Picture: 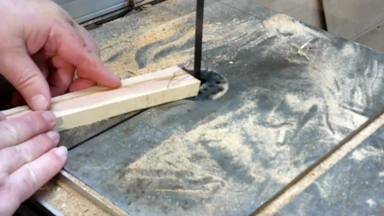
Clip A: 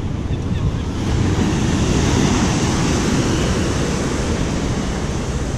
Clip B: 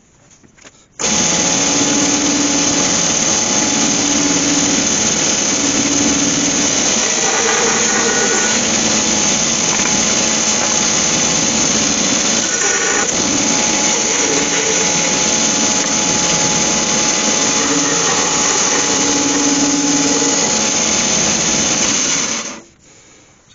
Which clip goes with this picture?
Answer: B